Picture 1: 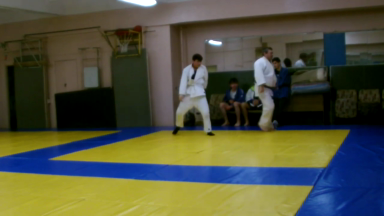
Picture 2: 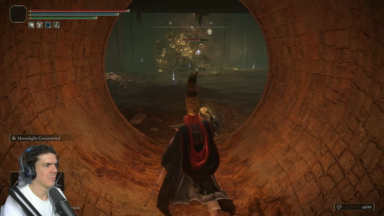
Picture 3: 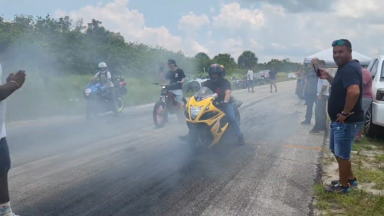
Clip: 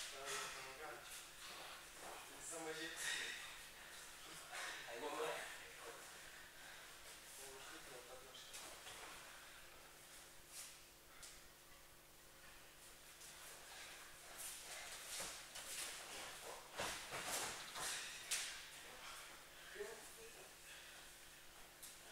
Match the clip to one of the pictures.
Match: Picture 1